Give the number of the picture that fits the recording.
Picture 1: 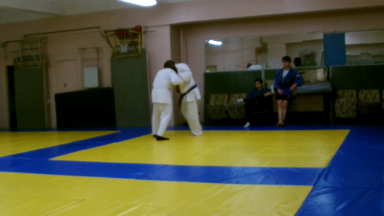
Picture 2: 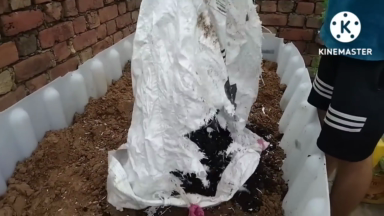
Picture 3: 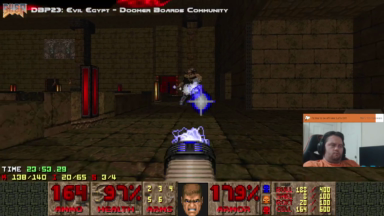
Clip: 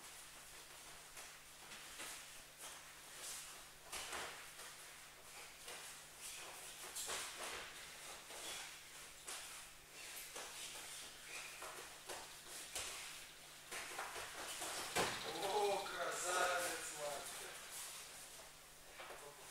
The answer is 1